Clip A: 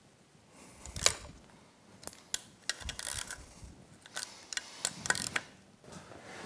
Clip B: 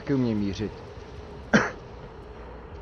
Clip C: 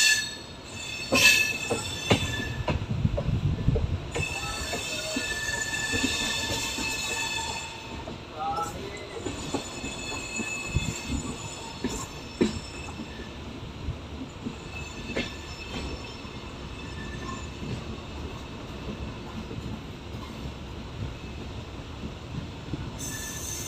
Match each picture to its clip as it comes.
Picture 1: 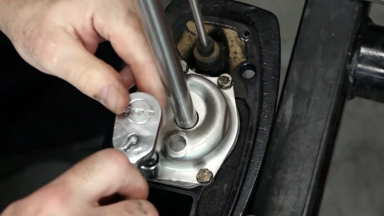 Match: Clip A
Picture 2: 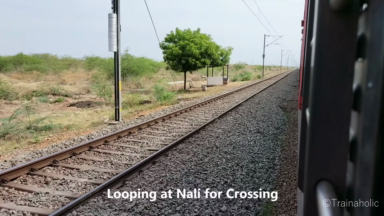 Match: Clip C